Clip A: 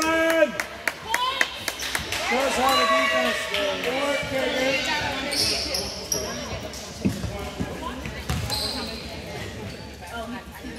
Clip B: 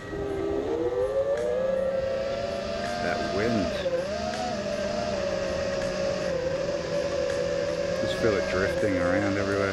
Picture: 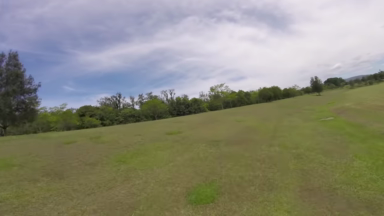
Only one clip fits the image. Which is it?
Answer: B